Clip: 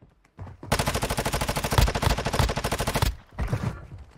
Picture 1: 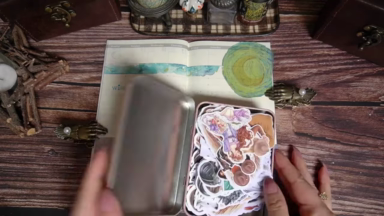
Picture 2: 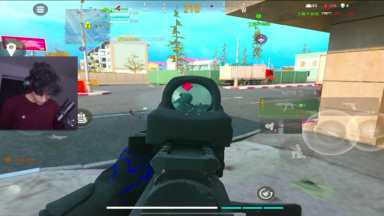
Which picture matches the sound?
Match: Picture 2